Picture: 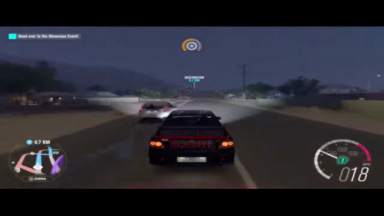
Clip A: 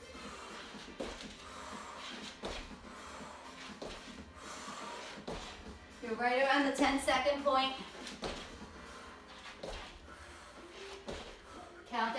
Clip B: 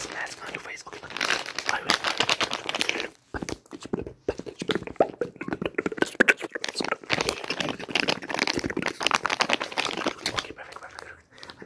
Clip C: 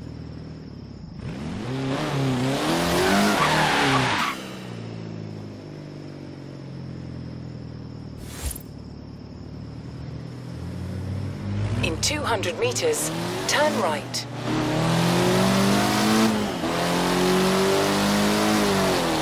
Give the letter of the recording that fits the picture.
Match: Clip C